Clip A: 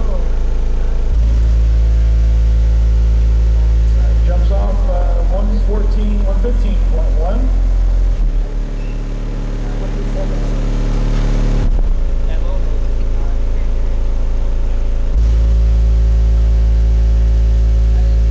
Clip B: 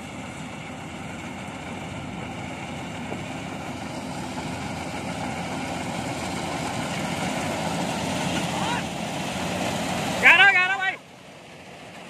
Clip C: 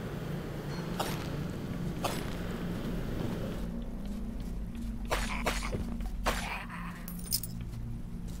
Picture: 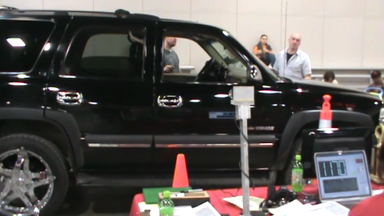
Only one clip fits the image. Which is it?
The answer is A